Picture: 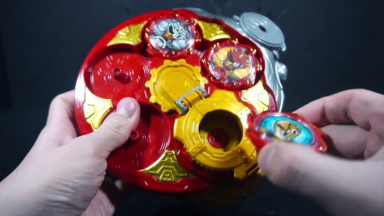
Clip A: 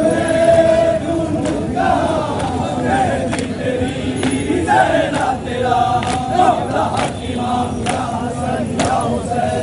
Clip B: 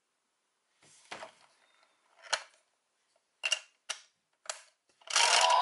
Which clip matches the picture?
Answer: B